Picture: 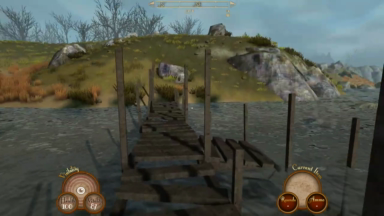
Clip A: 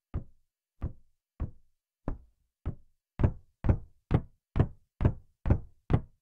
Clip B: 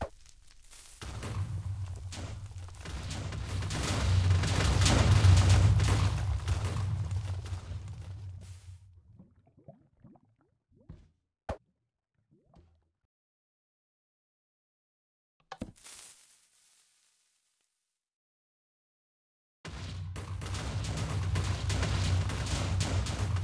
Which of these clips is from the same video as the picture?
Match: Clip A